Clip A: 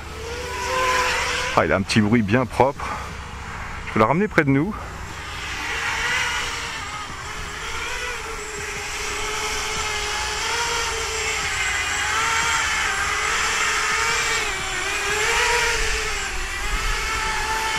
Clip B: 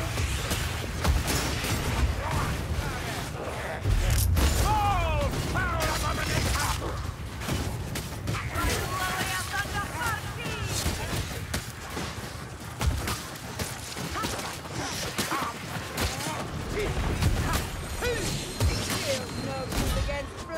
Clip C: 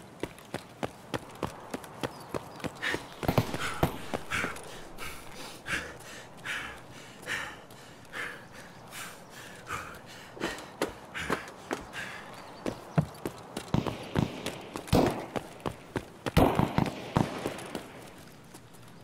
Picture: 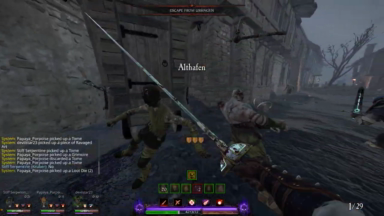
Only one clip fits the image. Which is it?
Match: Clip B